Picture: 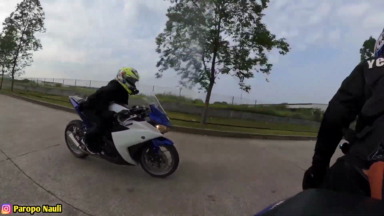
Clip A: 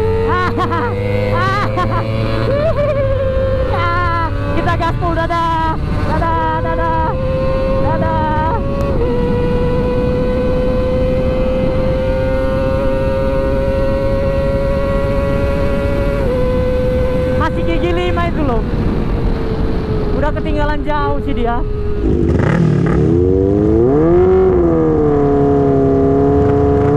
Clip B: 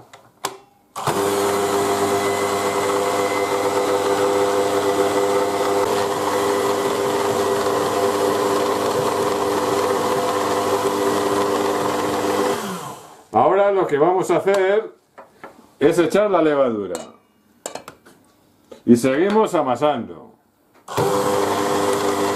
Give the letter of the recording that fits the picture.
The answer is A